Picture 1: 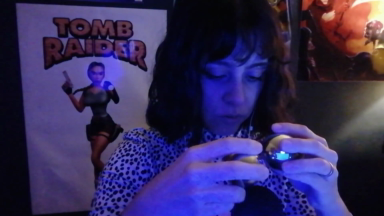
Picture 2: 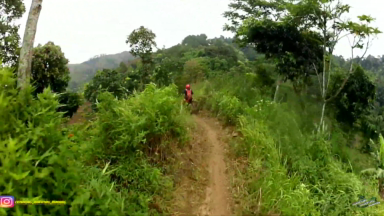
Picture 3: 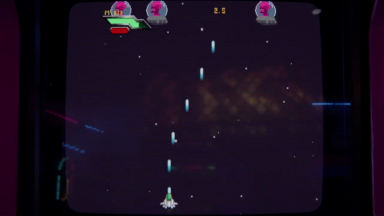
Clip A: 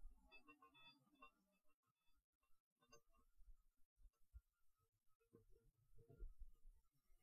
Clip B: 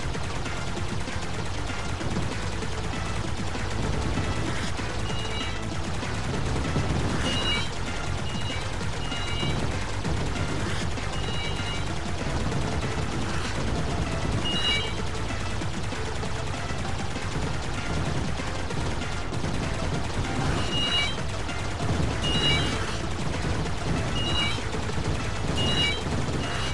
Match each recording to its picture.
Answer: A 1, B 3